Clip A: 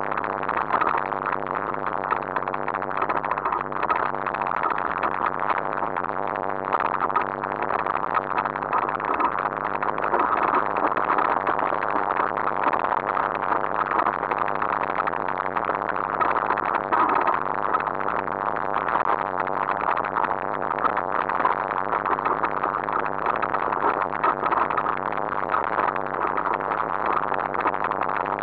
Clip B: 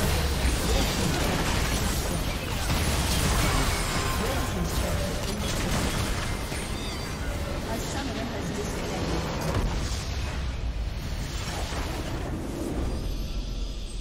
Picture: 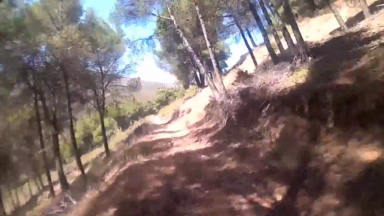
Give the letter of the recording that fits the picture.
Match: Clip A